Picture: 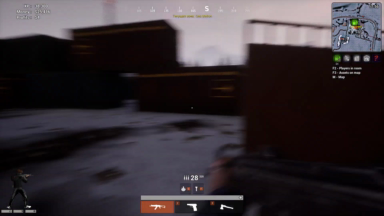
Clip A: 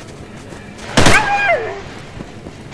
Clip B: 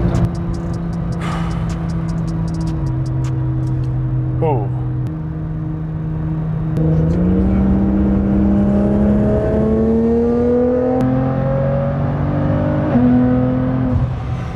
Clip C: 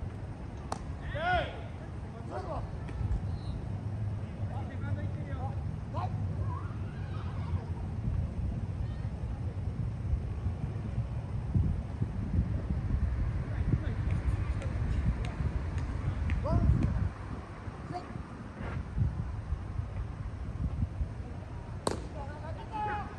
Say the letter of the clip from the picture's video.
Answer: A